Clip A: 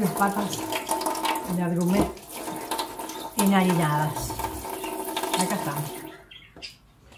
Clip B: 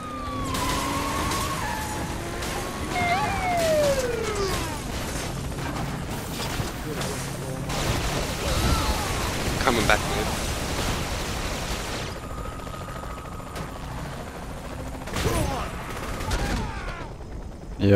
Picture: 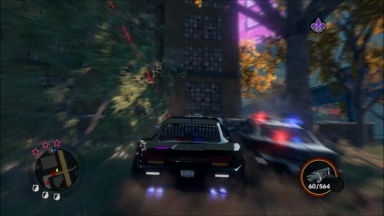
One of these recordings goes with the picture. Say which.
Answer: B